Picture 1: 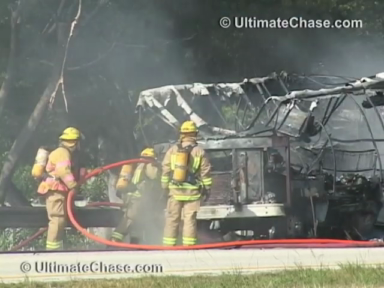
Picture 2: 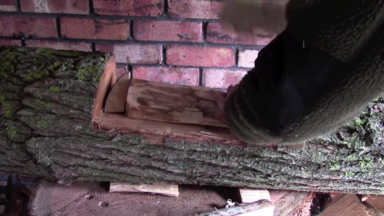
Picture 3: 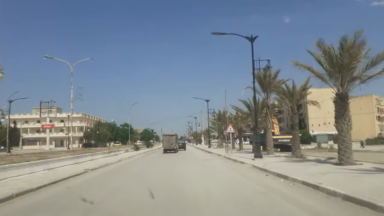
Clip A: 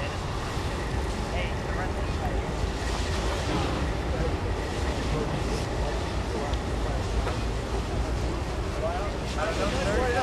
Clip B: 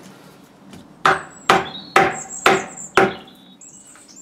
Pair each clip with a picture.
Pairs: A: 1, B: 2